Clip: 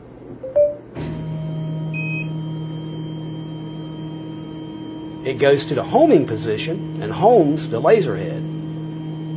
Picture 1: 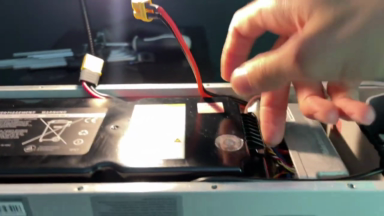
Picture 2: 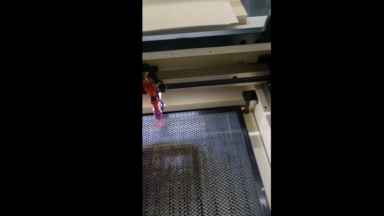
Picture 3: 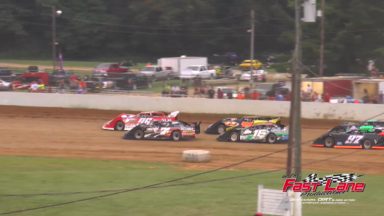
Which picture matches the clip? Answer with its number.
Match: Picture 2